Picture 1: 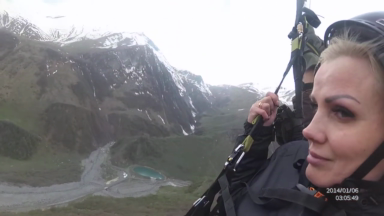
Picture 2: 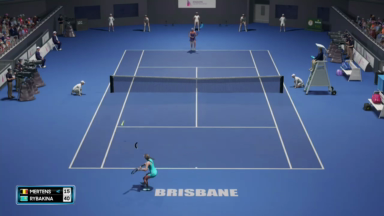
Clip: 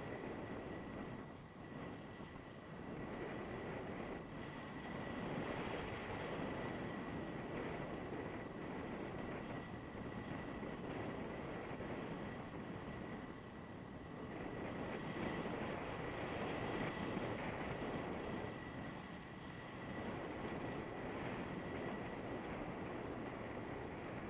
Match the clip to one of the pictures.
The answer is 1